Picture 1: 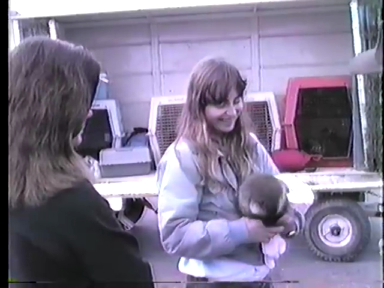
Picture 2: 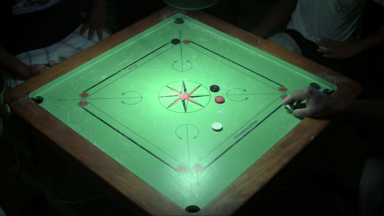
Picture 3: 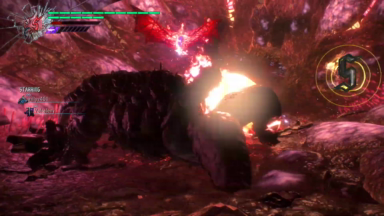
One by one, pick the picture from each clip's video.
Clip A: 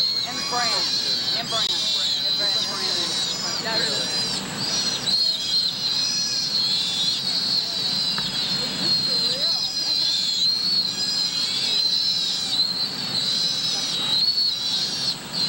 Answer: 1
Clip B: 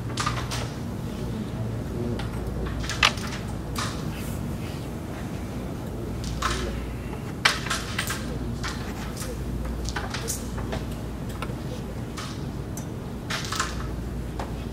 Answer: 2